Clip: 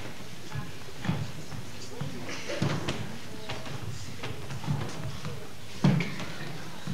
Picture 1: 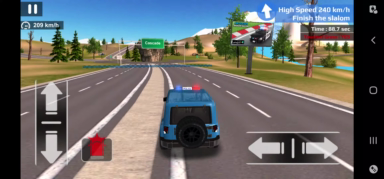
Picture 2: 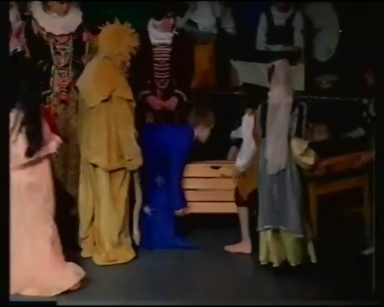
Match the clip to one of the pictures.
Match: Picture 2